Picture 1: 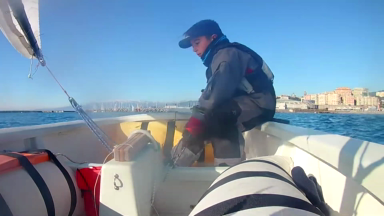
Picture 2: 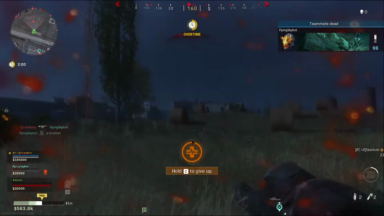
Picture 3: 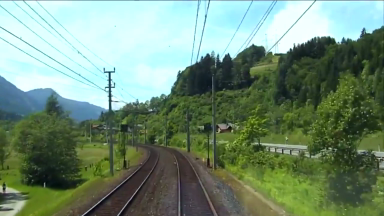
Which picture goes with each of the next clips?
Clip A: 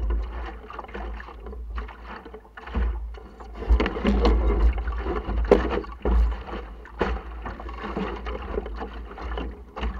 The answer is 1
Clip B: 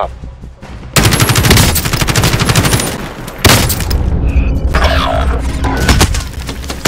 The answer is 2